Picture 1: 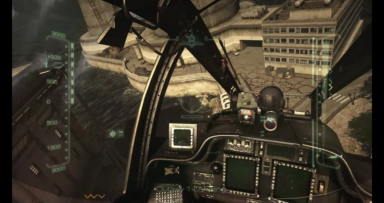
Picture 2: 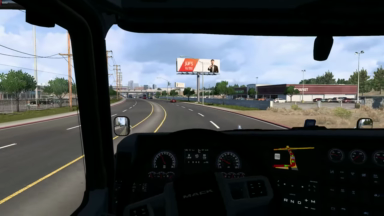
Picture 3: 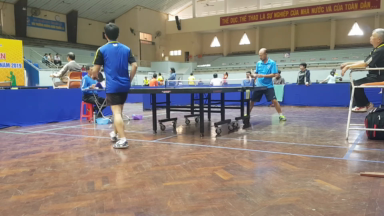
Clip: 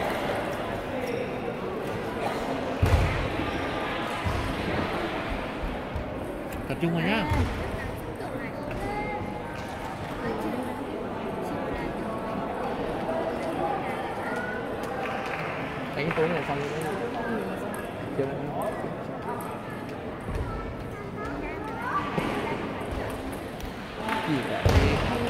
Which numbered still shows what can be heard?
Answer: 3